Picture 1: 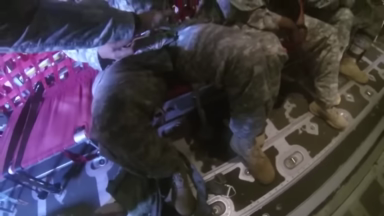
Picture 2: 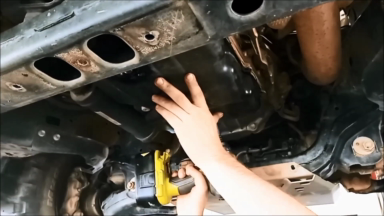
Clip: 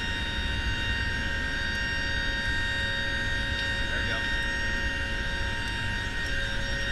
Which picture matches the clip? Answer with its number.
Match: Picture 1